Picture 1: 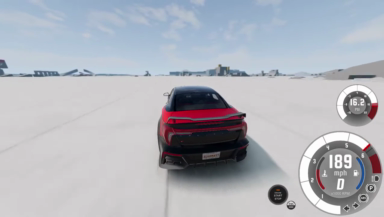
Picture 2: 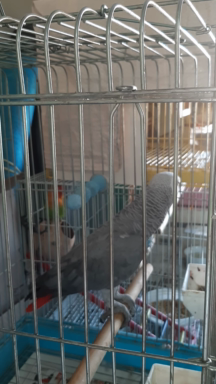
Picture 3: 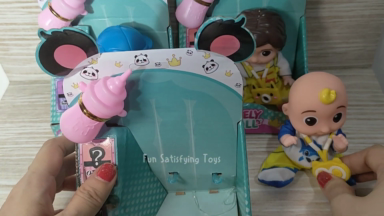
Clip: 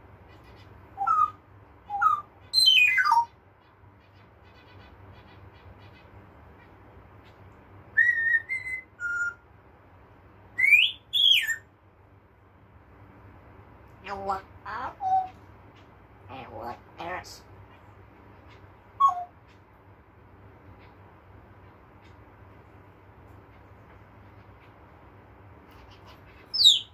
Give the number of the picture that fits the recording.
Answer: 2